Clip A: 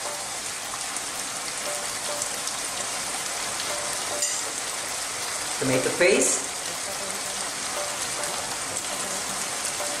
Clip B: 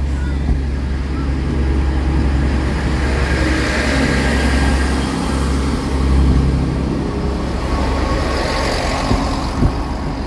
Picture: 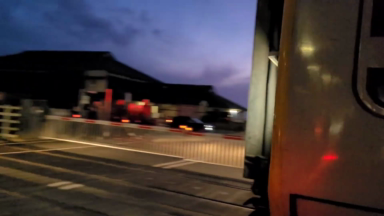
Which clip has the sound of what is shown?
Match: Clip B